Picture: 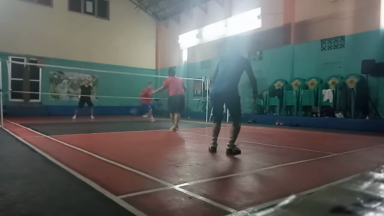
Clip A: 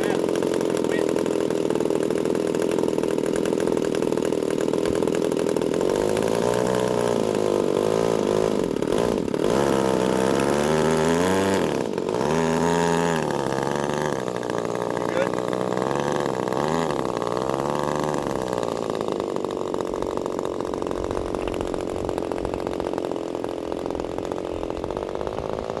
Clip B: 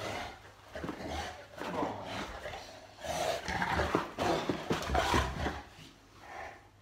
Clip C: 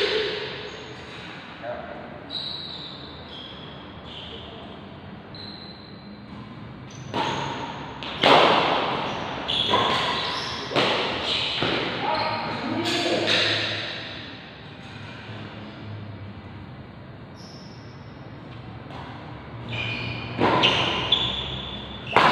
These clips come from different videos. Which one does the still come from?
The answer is C